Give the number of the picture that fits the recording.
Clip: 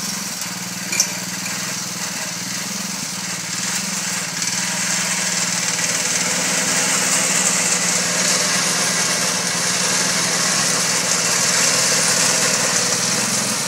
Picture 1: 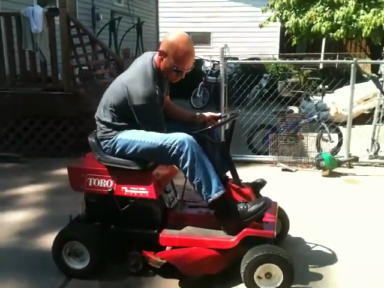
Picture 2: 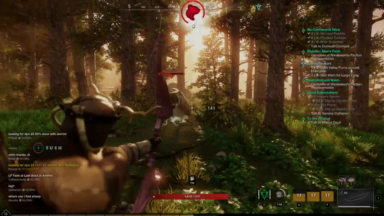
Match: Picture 1